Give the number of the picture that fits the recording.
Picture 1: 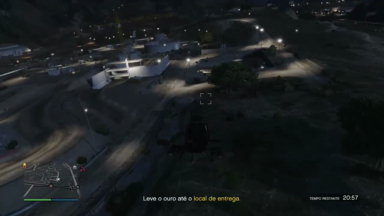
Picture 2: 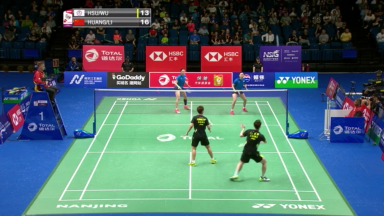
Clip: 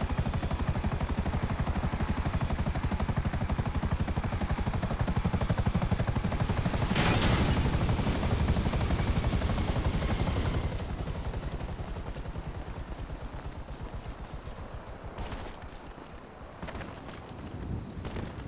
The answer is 1